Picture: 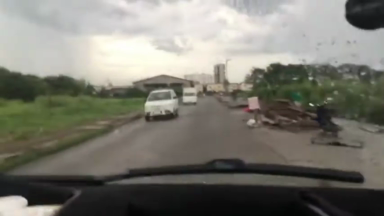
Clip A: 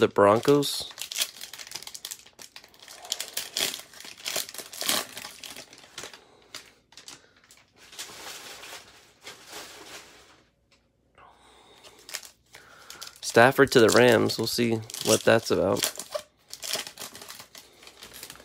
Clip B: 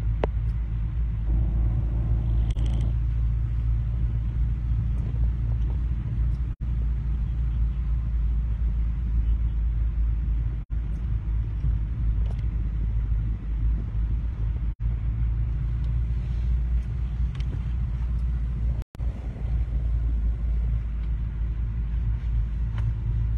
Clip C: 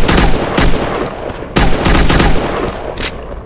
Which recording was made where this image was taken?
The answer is B